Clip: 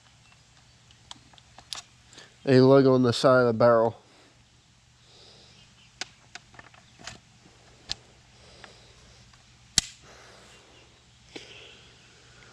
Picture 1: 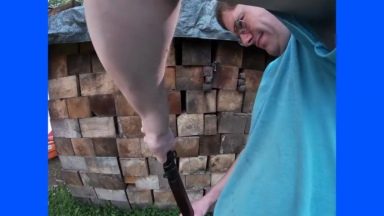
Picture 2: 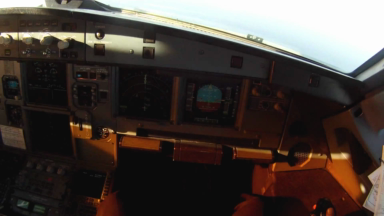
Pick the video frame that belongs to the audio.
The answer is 1